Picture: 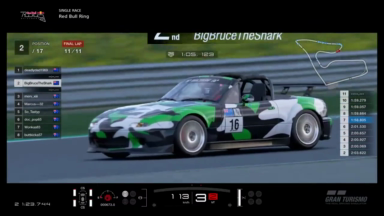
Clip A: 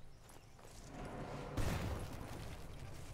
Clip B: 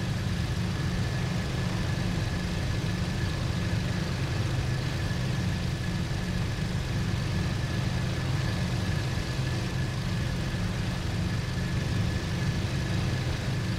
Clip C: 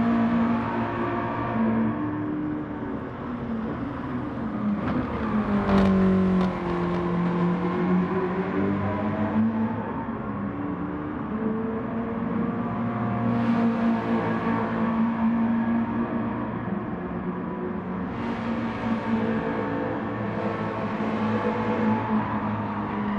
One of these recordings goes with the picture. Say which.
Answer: C